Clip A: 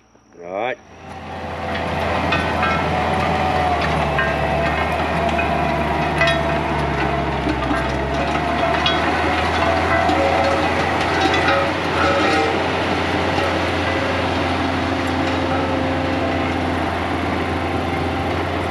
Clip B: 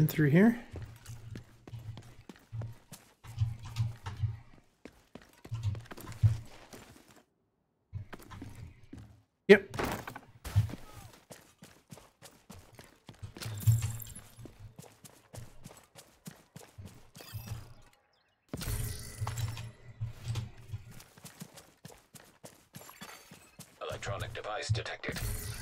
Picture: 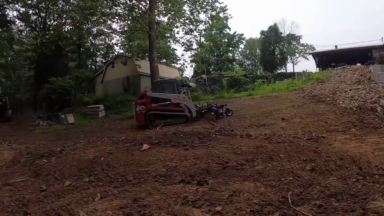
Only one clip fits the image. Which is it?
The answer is A